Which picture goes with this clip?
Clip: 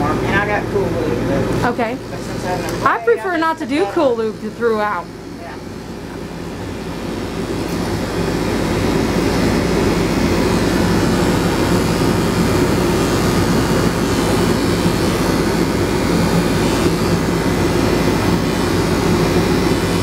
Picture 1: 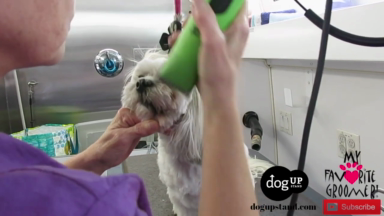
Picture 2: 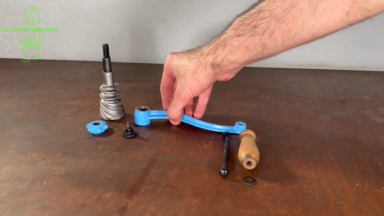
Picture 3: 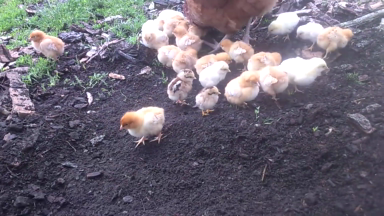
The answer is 1